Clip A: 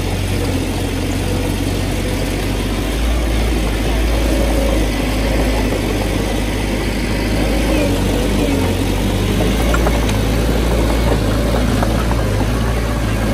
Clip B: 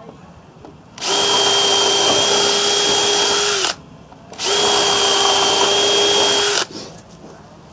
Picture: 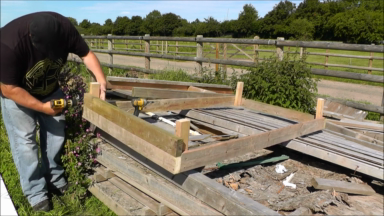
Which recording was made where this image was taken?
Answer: B